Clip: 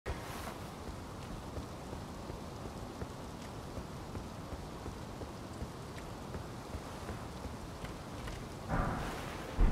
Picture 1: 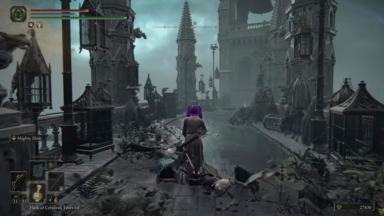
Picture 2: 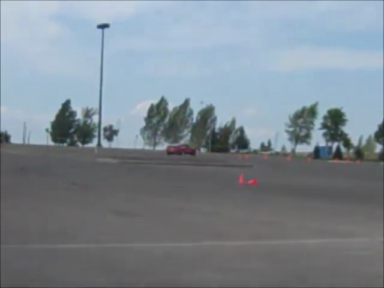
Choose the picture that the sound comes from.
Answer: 1